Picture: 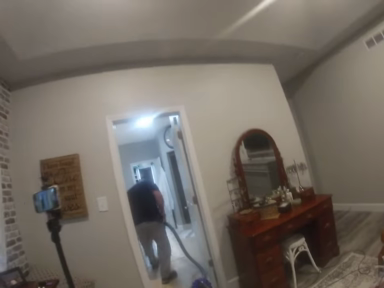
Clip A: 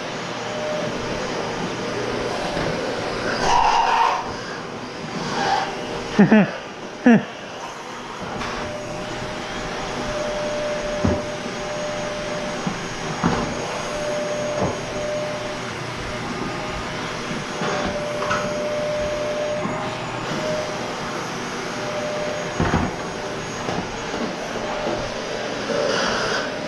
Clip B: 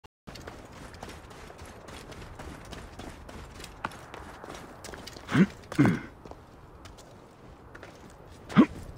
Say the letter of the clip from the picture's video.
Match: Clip A